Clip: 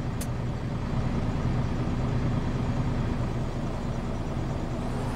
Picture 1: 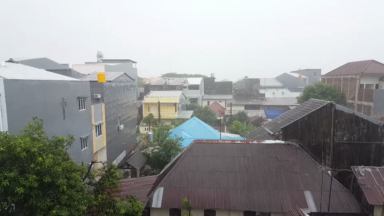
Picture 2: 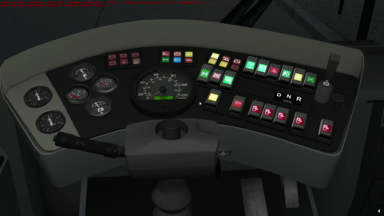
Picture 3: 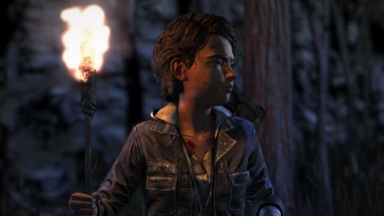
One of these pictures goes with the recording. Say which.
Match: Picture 2